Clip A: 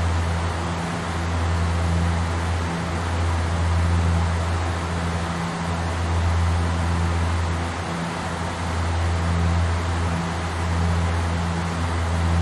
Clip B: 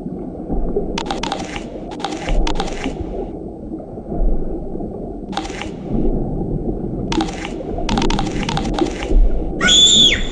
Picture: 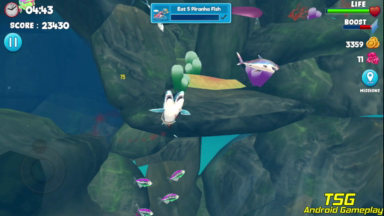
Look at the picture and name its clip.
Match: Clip B